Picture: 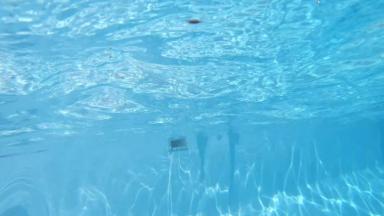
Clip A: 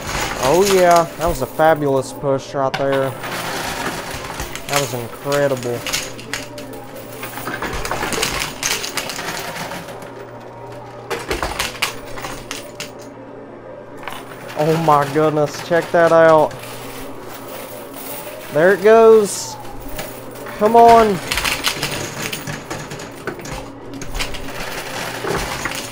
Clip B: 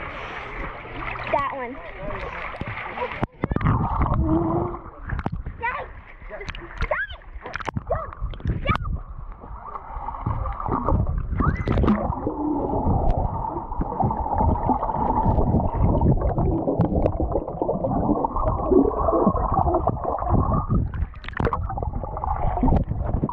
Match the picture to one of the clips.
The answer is B